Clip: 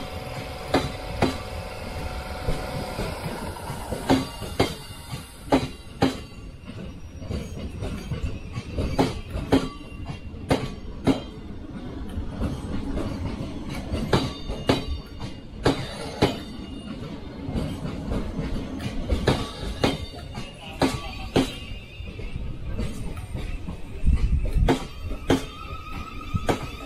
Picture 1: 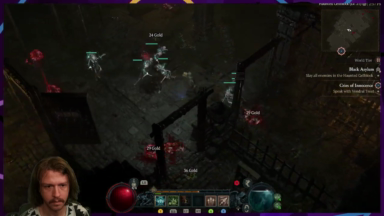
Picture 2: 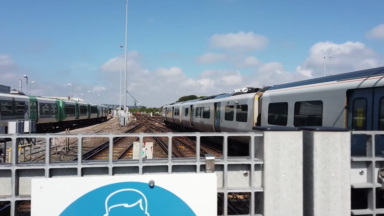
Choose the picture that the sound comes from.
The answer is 2